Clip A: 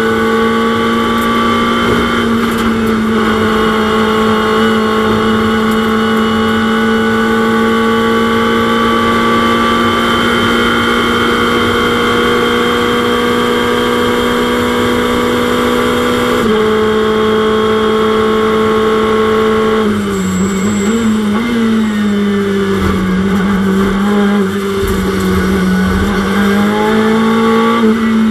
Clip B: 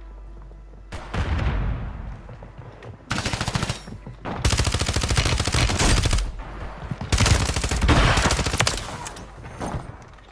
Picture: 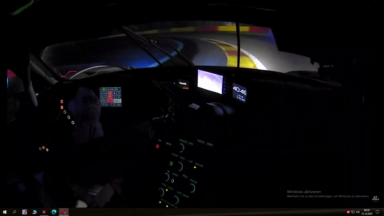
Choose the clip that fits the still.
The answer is A